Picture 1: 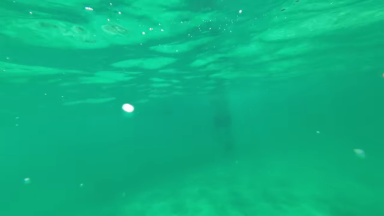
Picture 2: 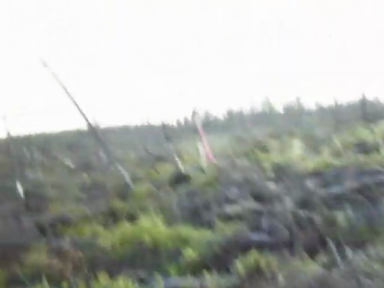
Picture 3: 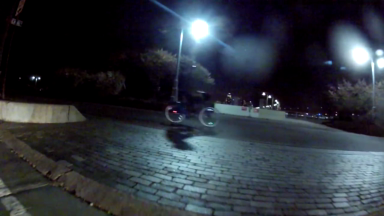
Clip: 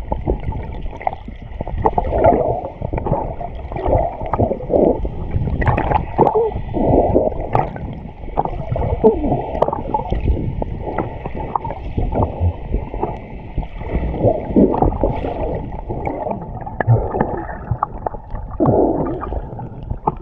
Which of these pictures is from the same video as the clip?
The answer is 1